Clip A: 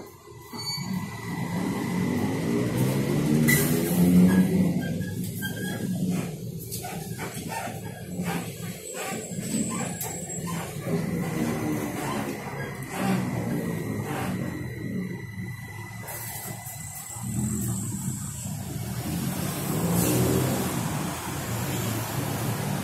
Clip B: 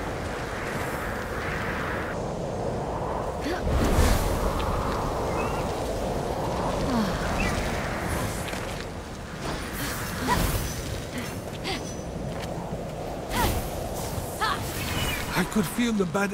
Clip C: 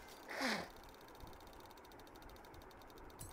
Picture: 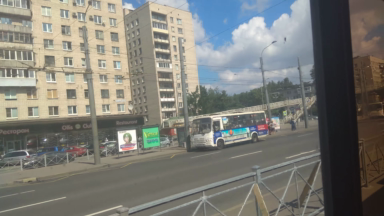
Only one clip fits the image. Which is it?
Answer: A